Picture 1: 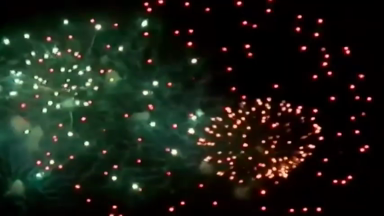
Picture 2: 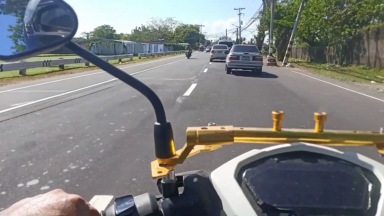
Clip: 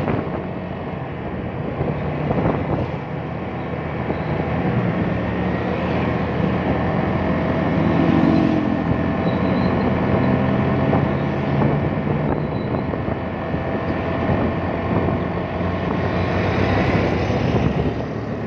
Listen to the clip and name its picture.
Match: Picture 2